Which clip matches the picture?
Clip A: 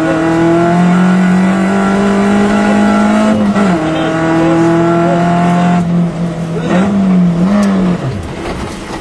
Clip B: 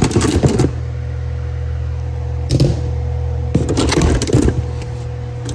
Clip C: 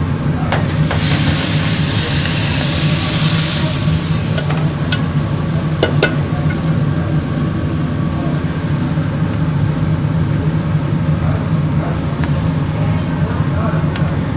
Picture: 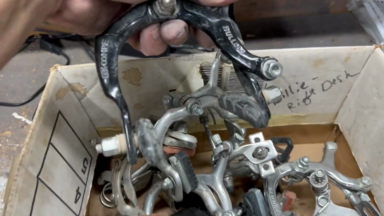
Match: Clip B